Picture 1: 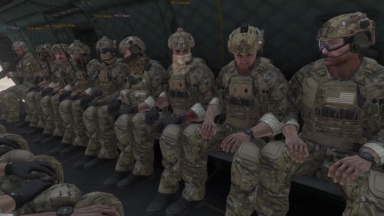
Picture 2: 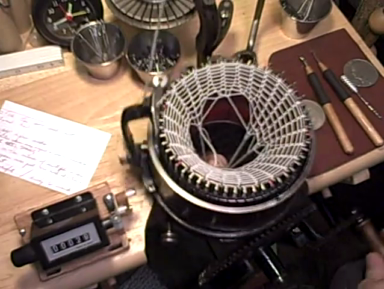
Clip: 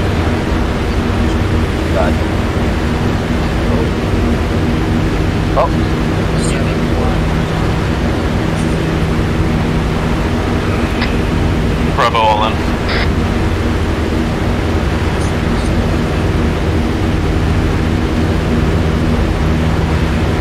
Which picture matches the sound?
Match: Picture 1